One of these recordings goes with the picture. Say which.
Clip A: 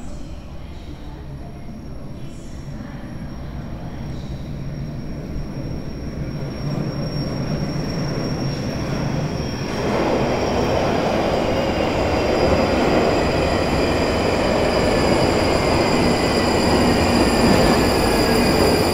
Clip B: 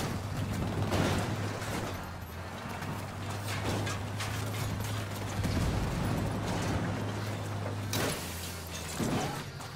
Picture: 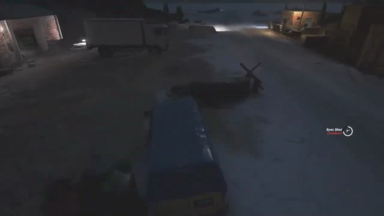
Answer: B